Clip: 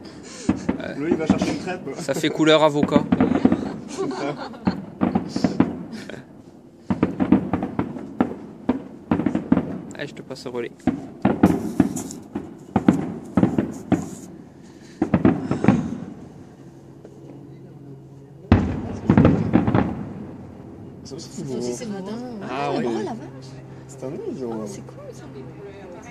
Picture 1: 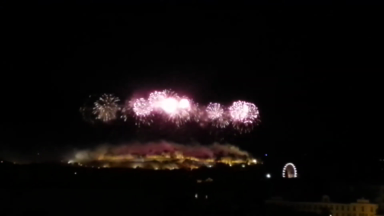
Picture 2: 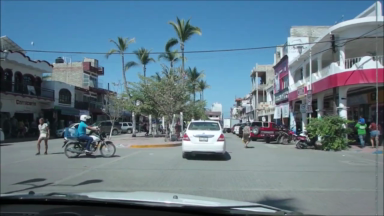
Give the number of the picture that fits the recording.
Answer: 1